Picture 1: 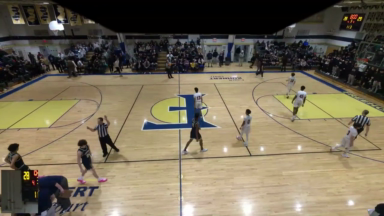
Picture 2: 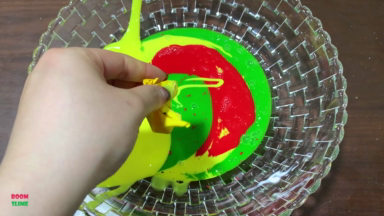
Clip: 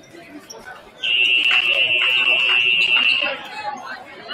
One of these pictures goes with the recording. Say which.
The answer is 1